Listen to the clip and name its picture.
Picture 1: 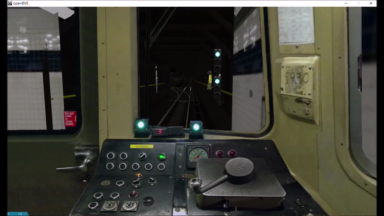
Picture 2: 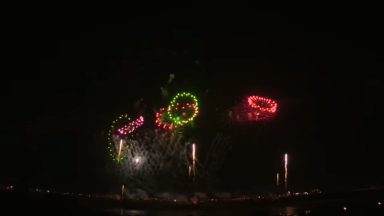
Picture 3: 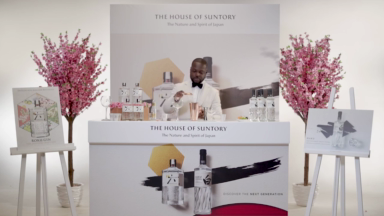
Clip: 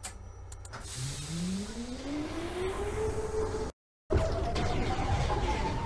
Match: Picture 1